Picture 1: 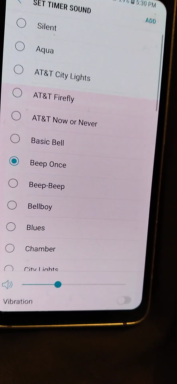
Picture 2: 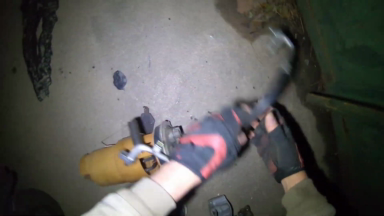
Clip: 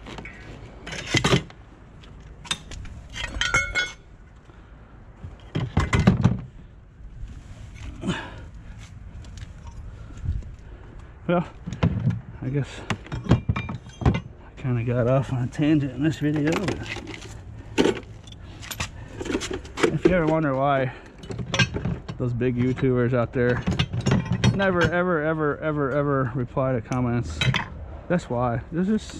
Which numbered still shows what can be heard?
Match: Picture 2